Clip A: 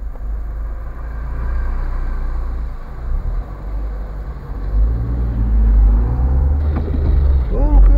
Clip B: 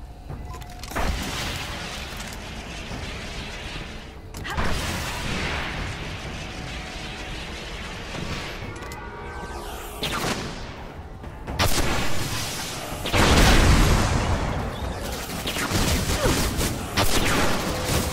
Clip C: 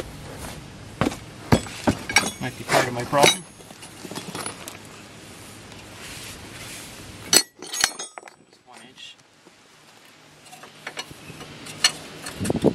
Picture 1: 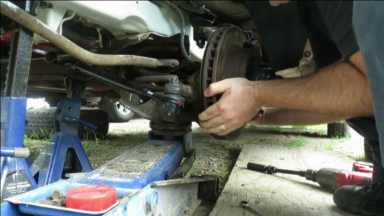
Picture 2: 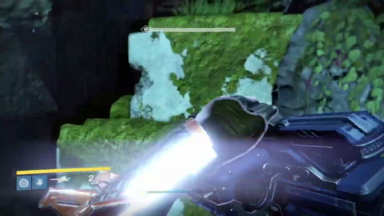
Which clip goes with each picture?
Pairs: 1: C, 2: B